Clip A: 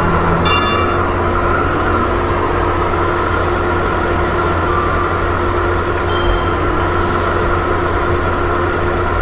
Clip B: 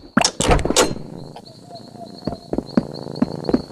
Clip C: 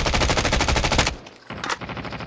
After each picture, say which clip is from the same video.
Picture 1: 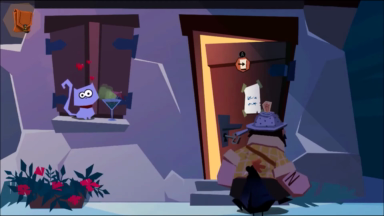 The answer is B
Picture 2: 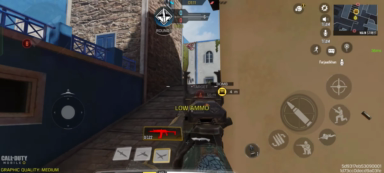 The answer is C